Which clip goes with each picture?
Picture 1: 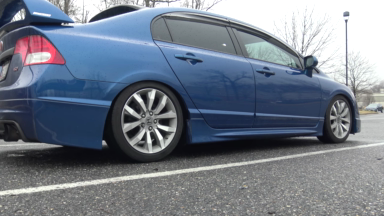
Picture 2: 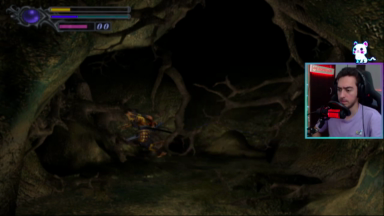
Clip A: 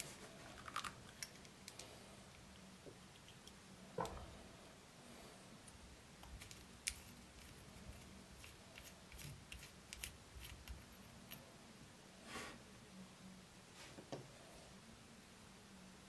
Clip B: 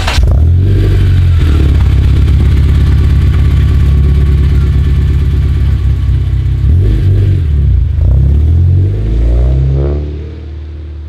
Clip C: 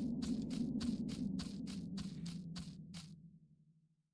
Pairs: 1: B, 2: C